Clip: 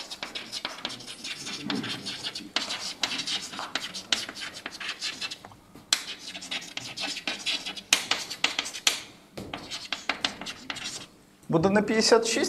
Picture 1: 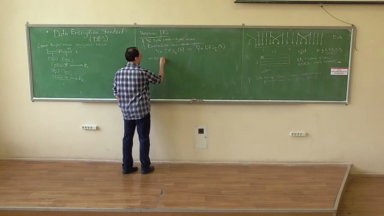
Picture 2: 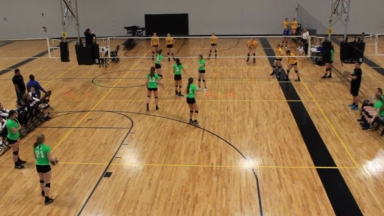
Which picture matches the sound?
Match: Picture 1